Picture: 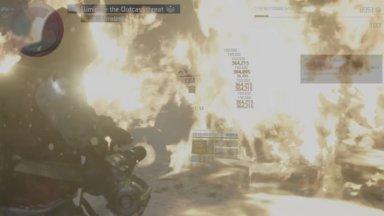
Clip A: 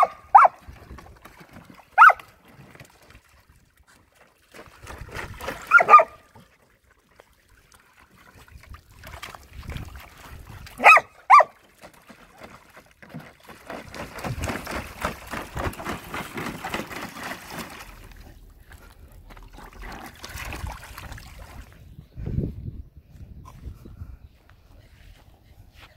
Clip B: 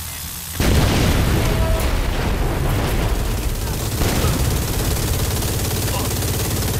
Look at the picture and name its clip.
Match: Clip B